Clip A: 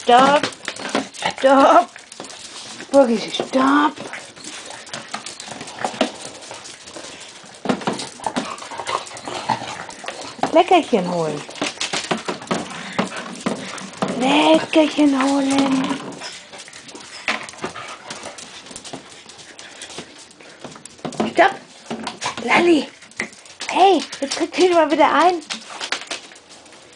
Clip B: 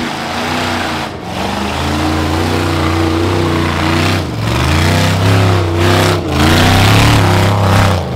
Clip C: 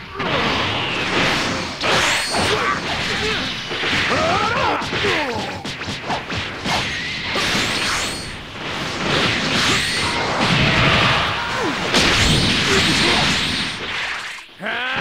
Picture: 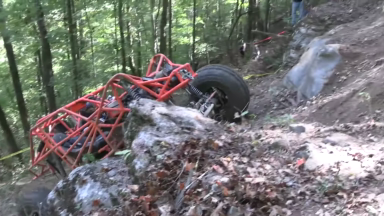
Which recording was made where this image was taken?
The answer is B